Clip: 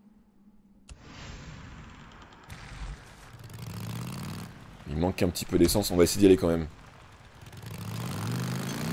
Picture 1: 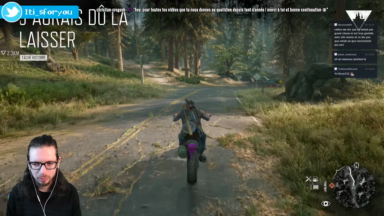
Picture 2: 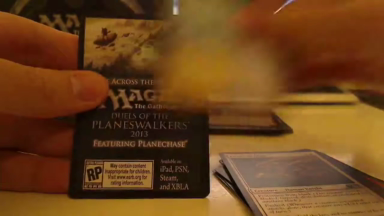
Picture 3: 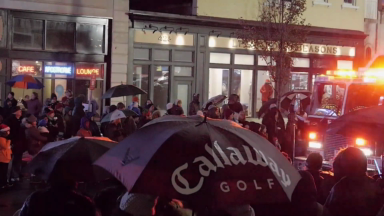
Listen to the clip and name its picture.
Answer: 1